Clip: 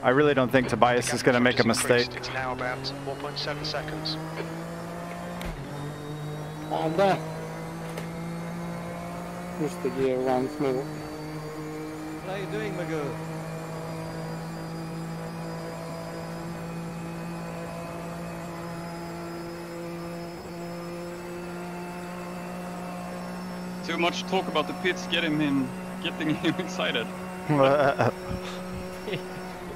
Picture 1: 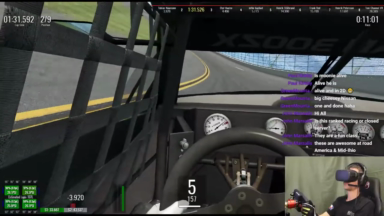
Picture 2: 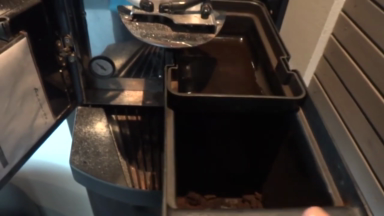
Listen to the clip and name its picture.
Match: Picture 1